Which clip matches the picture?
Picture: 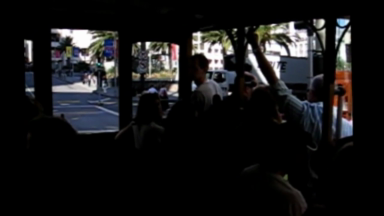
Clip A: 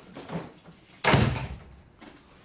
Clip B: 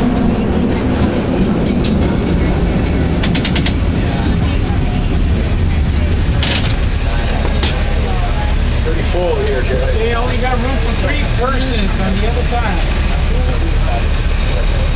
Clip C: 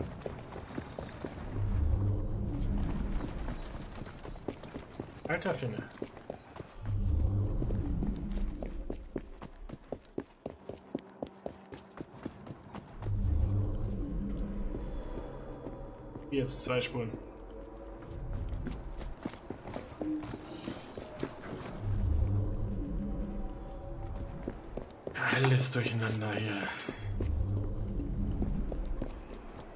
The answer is B